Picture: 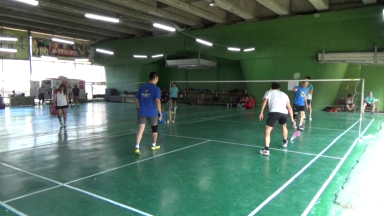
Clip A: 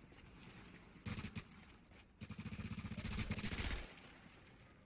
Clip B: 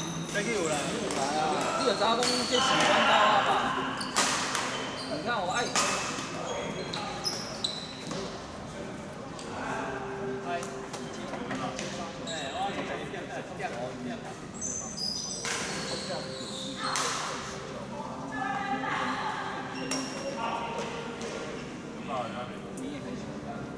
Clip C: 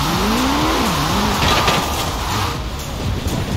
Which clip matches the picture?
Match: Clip B